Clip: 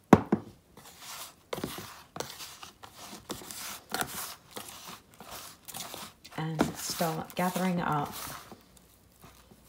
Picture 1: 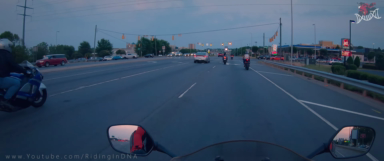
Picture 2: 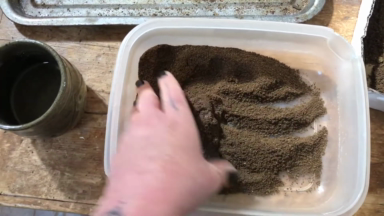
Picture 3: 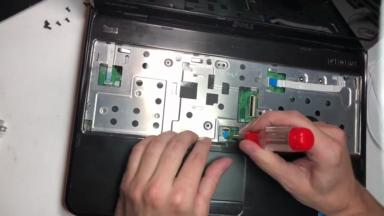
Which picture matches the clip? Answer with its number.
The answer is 2